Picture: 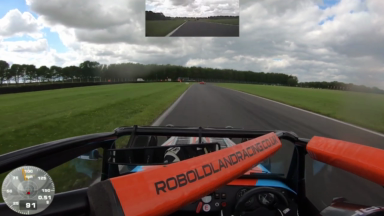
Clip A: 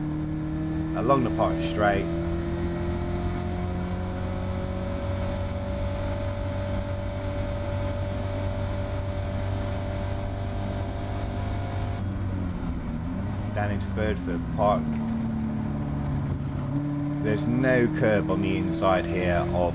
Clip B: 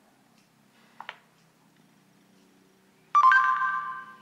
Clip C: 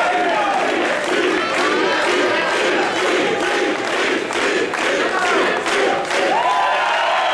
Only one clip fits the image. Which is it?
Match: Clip A